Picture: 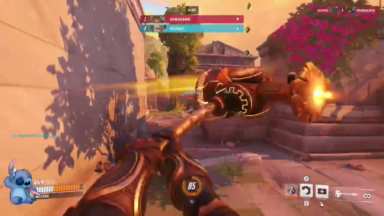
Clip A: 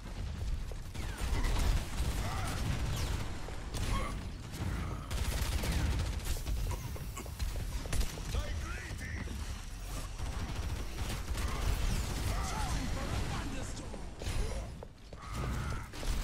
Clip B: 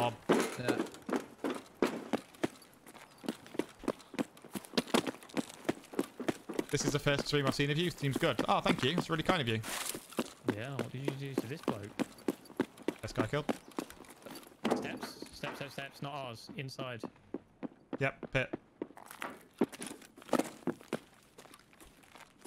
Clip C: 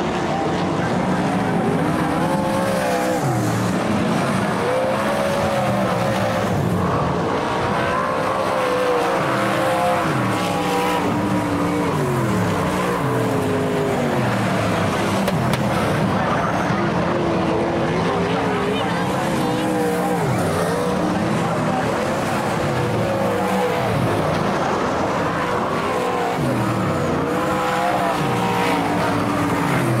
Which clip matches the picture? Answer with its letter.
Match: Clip A